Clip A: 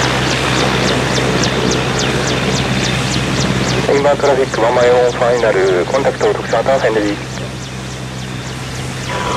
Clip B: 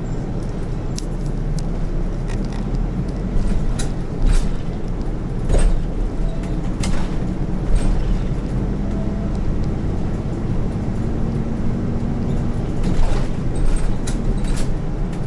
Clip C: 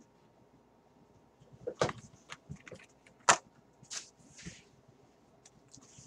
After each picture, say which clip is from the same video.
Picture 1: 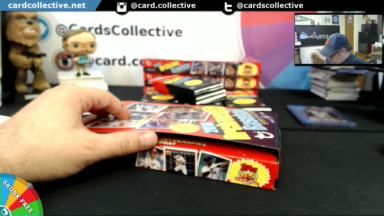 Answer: C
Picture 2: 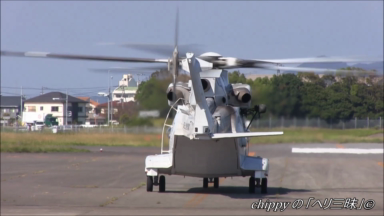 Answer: A